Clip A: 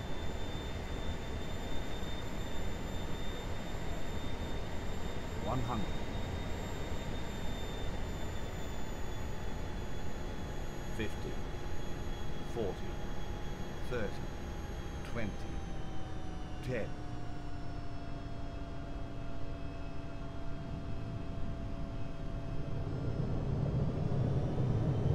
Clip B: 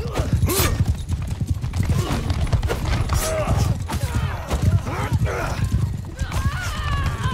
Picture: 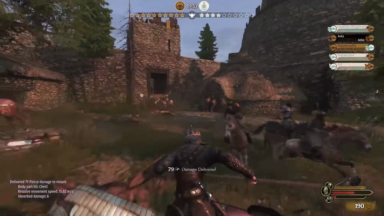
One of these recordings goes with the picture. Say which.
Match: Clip B